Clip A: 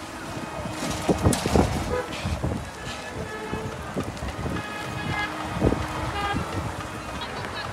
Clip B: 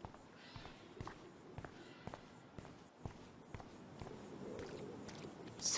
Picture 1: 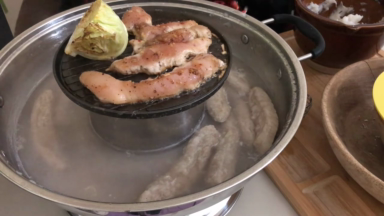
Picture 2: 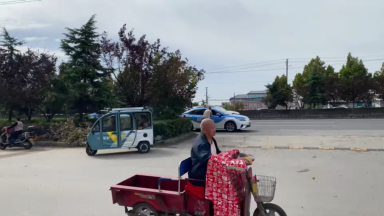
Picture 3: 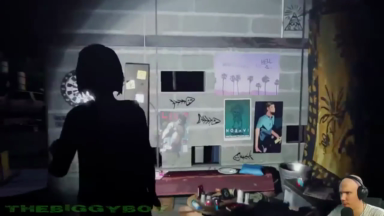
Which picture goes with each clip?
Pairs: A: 2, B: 3